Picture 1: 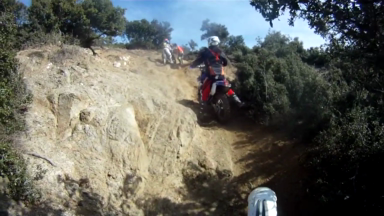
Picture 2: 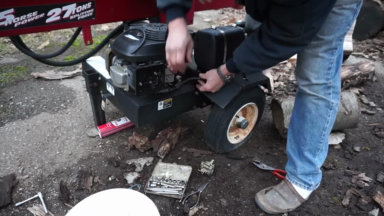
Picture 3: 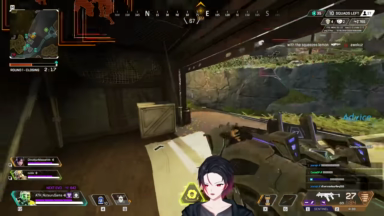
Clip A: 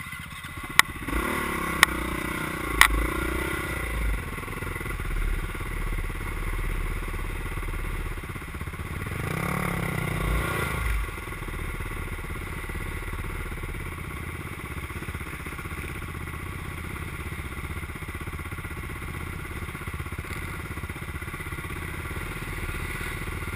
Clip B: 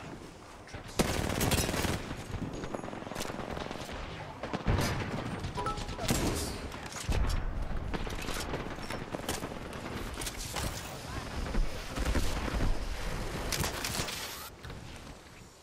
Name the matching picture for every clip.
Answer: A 1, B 3